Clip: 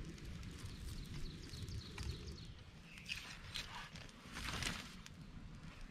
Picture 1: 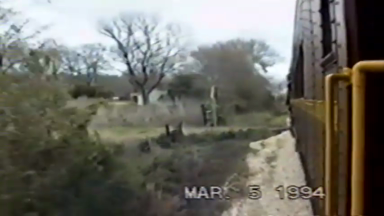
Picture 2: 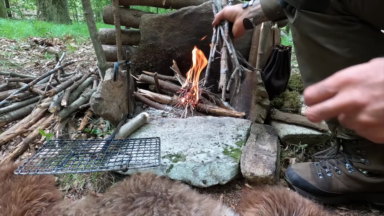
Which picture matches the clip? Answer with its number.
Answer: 2